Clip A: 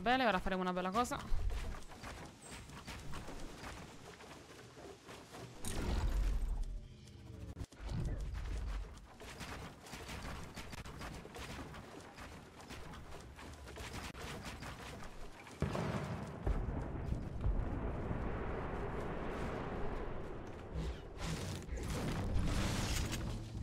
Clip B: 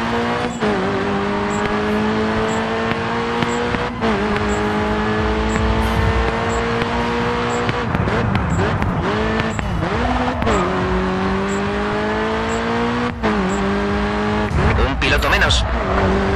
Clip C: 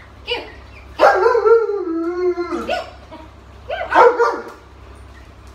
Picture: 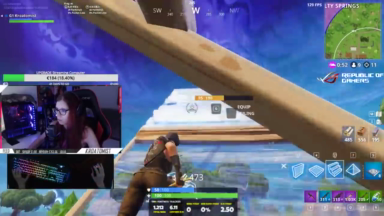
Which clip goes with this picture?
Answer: A